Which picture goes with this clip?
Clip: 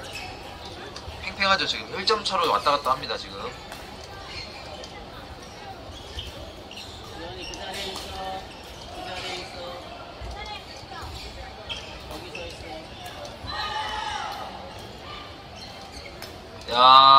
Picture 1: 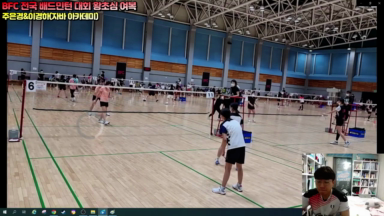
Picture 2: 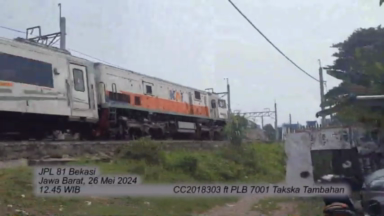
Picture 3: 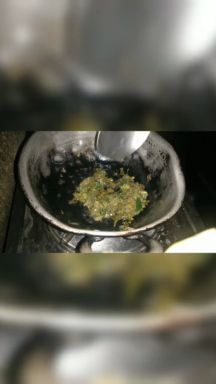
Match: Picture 1